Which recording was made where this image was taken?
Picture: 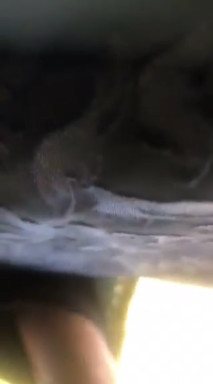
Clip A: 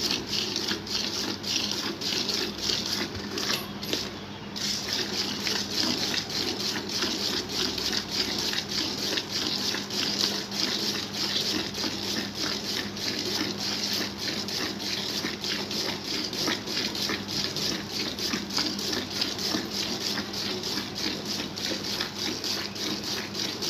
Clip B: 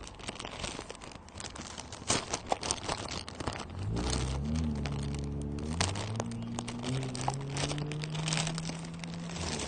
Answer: B